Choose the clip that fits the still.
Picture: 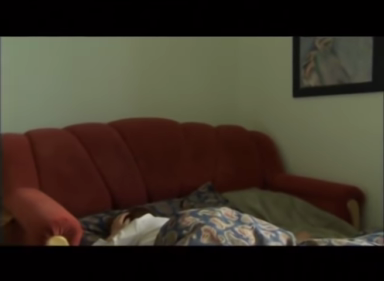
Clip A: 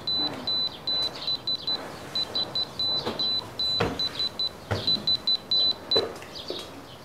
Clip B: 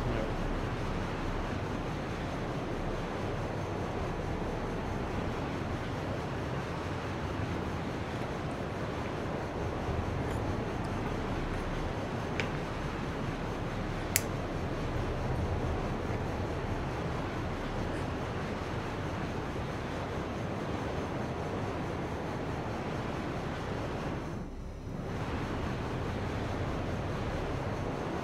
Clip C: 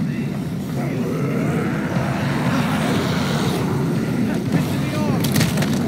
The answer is A